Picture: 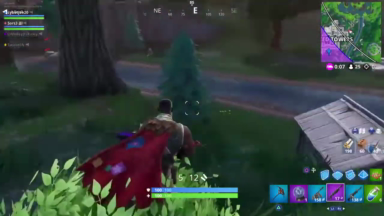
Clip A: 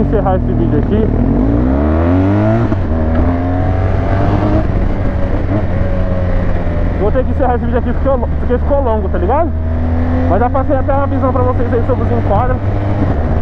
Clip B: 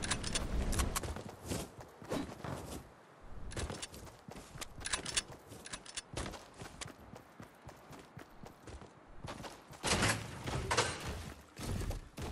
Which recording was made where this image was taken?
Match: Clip B